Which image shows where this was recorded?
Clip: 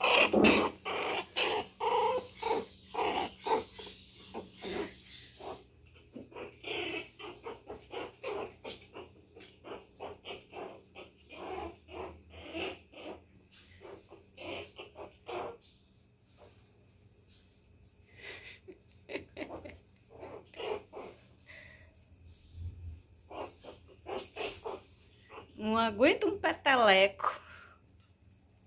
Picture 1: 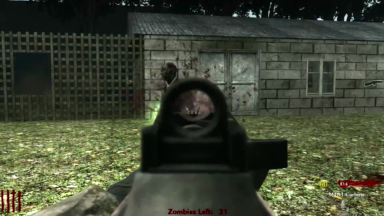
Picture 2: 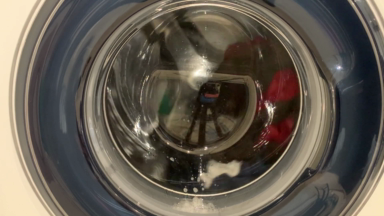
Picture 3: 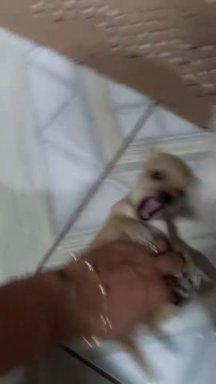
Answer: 3